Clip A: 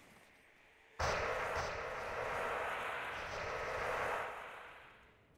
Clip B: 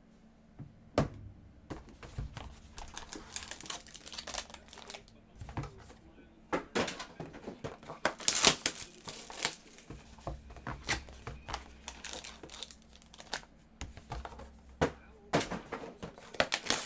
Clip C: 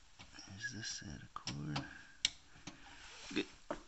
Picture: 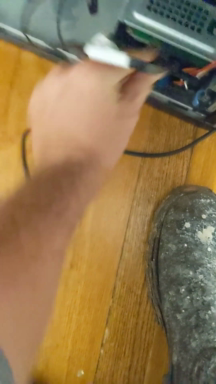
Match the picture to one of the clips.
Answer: C